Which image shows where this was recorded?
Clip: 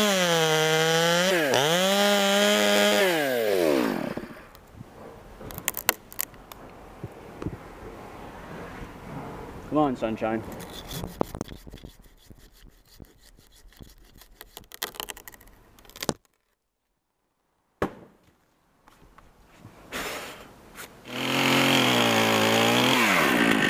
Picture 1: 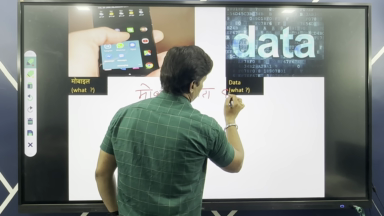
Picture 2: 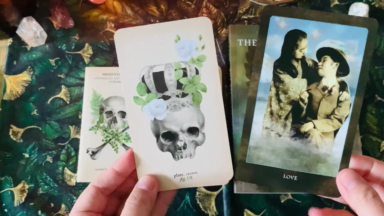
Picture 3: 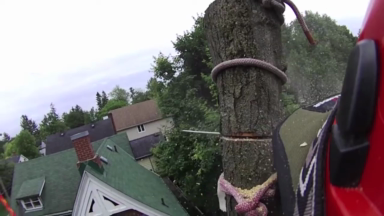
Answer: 3